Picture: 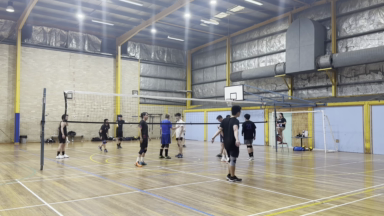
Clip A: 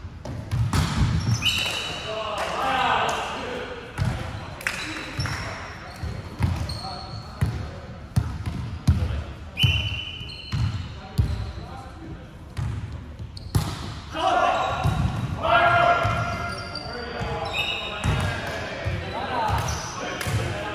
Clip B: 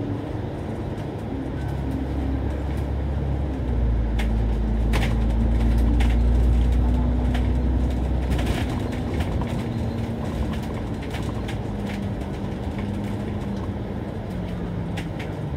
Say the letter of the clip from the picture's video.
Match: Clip A